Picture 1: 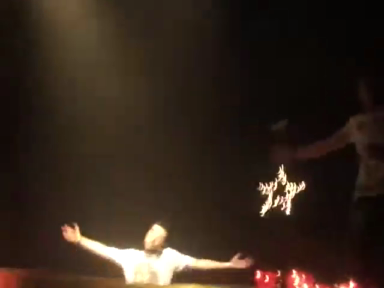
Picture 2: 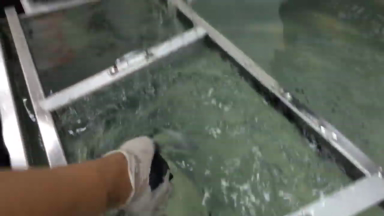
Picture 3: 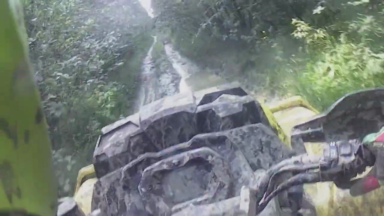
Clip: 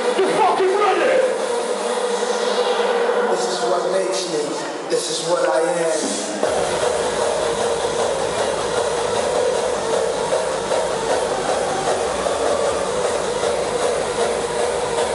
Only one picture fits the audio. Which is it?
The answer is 1